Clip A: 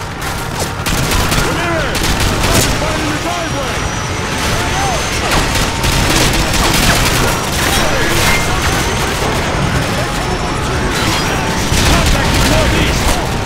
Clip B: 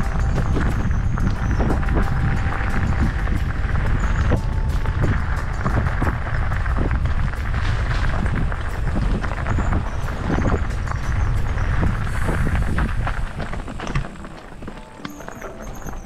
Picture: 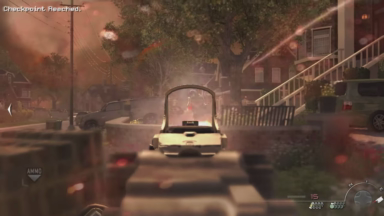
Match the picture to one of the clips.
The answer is A